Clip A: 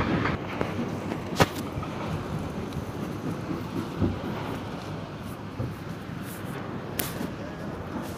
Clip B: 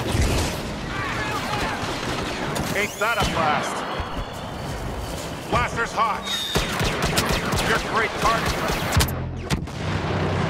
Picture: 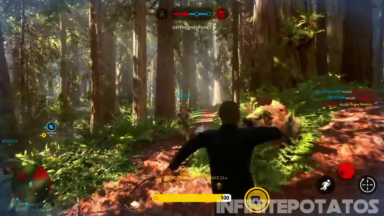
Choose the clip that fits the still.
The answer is B